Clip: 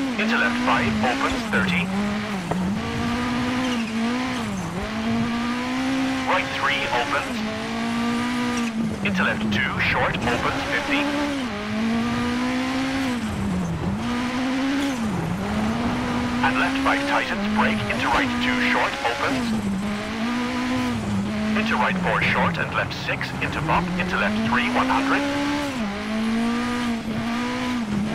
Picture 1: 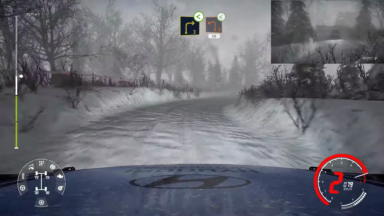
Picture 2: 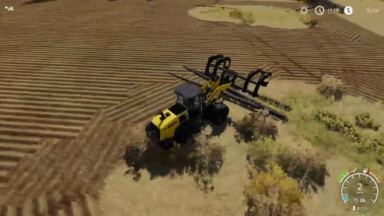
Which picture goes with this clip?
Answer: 1